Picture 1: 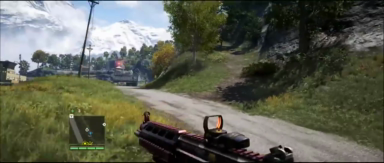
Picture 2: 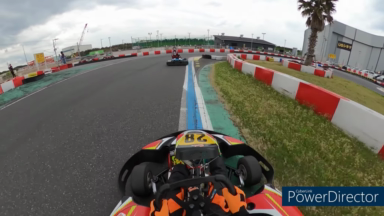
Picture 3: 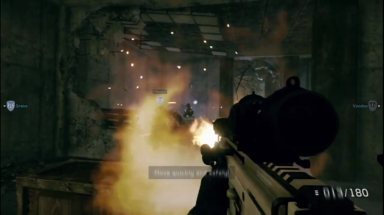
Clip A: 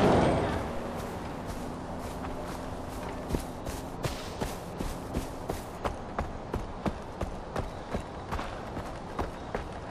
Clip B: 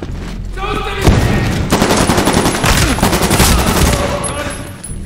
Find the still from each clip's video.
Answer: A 1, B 3